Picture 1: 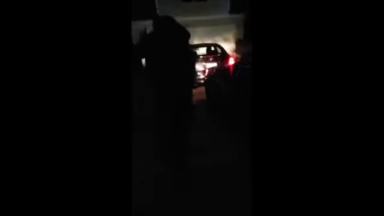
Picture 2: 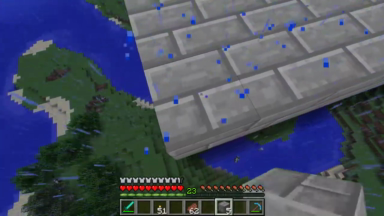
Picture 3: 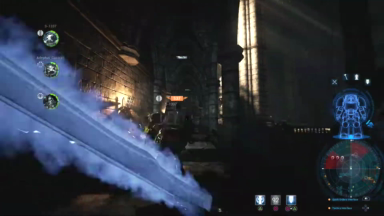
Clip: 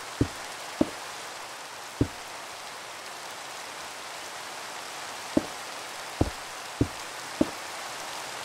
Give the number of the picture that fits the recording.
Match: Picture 2